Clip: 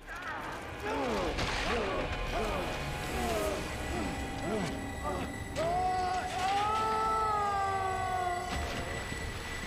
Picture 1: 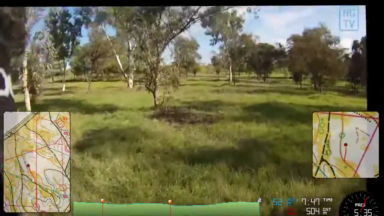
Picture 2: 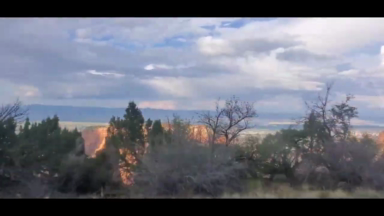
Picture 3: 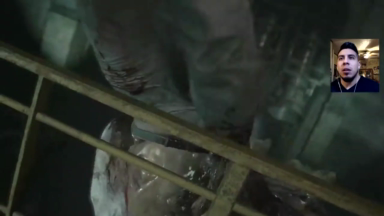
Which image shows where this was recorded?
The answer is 3